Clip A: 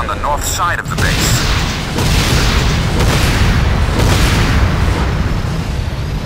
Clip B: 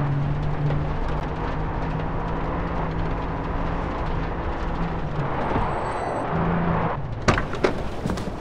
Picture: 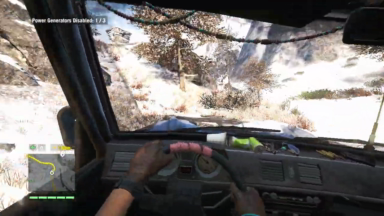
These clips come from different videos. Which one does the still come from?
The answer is B